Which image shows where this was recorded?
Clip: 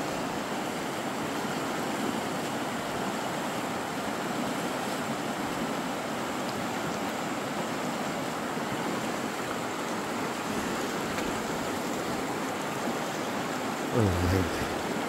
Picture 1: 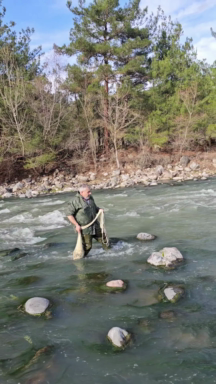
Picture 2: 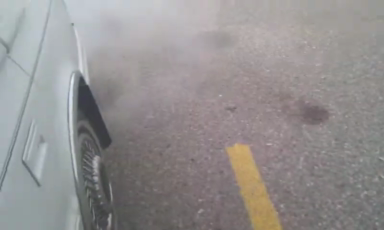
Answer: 1